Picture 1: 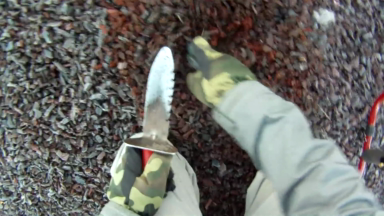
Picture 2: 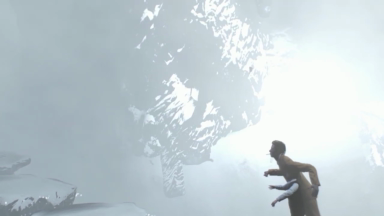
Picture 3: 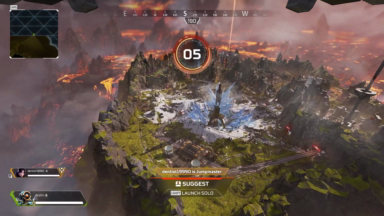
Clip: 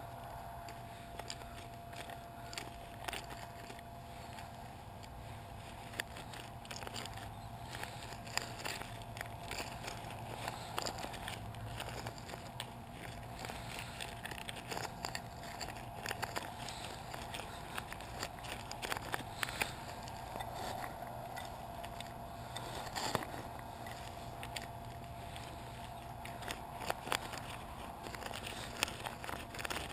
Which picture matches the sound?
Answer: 1